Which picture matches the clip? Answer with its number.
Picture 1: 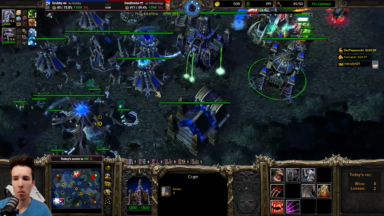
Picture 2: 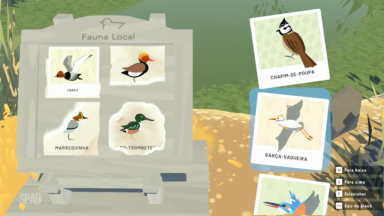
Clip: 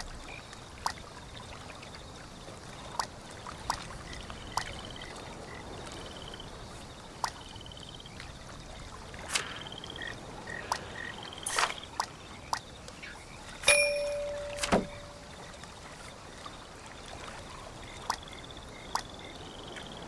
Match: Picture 2